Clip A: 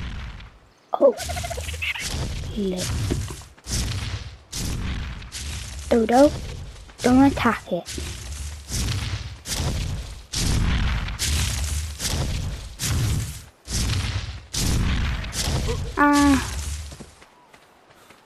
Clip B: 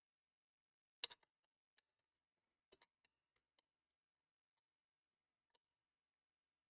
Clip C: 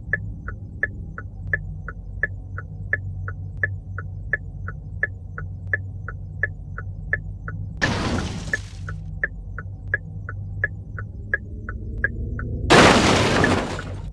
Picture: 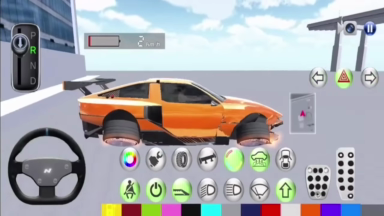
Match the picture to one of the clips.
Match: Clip C